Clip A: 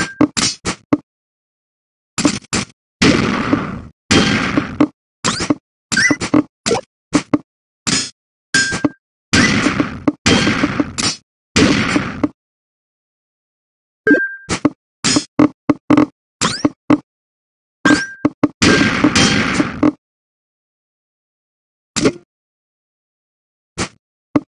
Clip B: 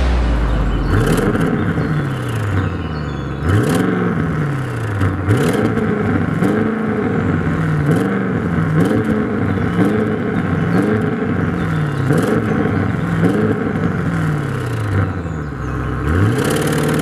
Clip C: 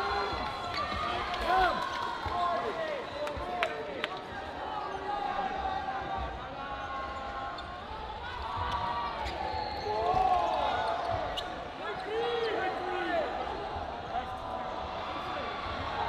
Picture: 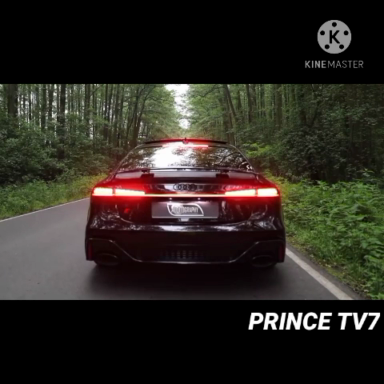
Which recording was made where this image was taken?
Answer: B